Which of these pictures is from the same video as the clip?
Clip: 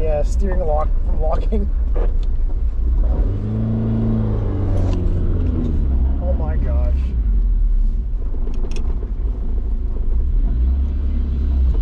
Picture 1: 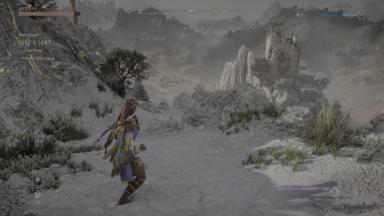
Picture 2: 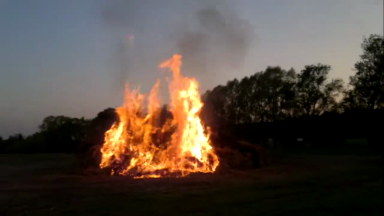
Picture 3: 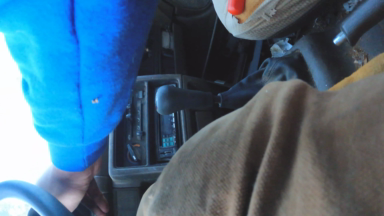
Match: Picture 3